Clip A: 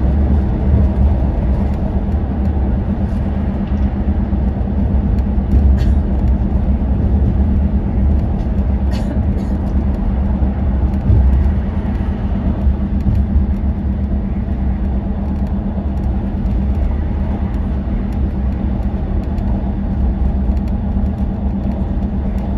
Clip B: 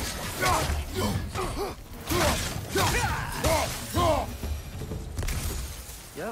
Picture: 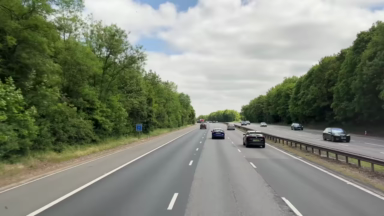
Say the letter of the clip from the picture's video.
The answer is A